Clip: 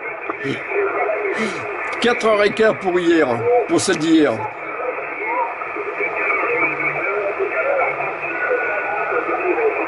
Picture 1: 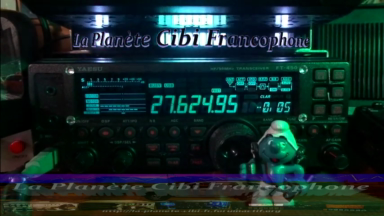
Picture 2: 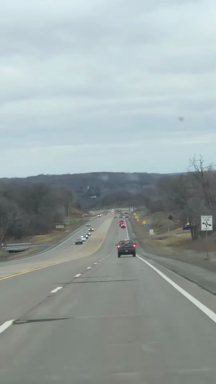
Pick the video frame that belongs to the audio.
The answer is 1